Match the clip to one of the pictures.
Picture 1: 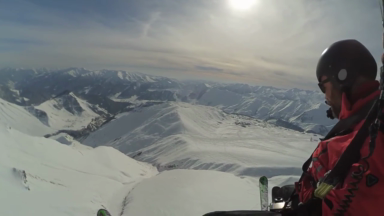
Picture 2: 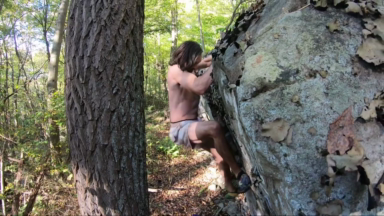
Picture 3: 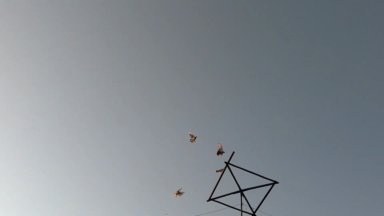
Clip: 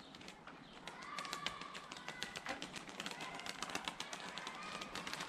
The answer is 3